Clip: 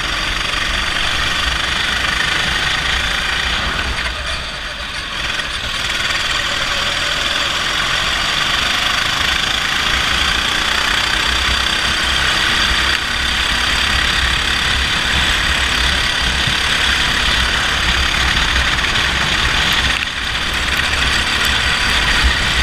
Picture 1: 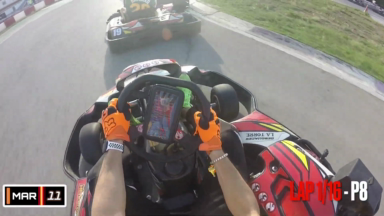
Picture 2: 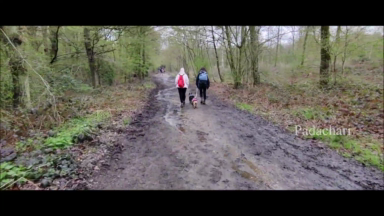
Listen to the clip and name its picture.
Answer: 1